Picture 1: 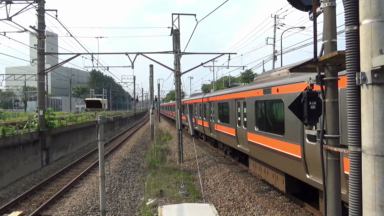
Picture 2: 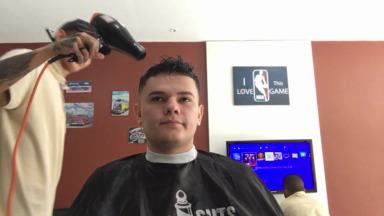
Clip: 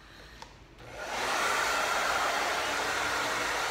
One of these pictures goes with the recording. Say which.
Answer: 2